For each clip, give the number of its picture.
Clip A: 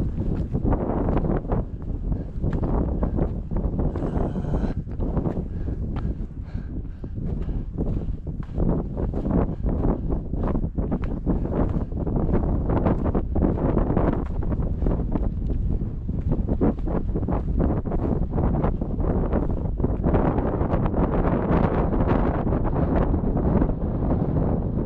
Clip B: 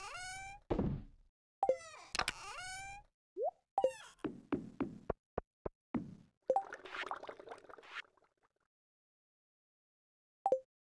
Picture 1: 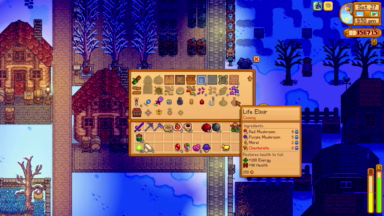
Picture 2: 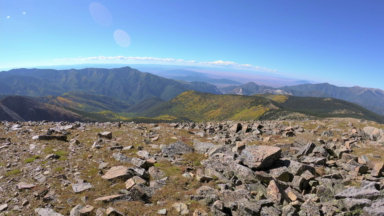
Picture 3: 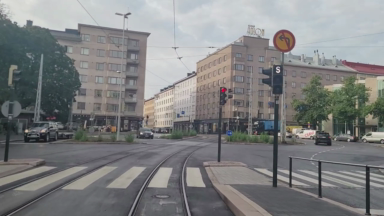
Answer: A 2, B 1